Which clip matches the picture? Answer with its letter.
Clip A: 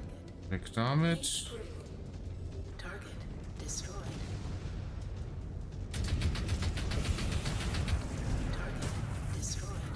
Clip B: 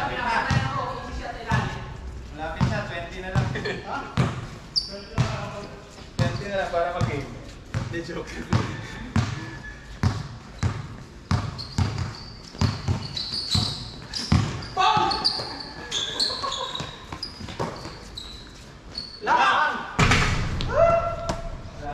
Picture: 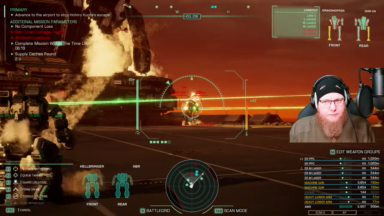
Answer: A